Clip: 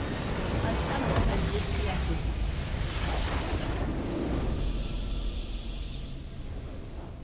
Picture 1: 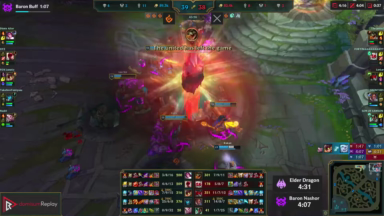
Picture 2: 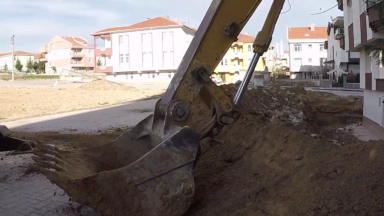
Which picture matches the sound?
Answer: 1